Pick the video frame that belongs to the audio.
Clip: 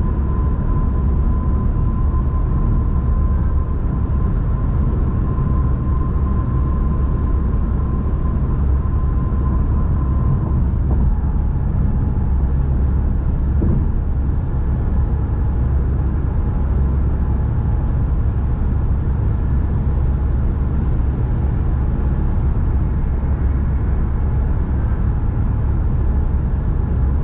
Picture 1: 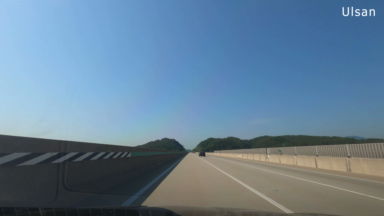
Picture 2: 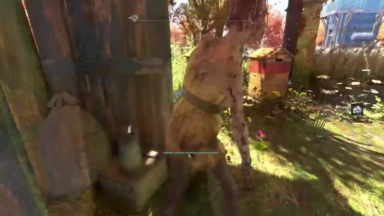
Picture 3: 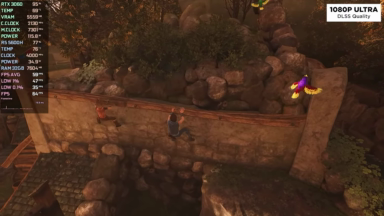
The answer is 1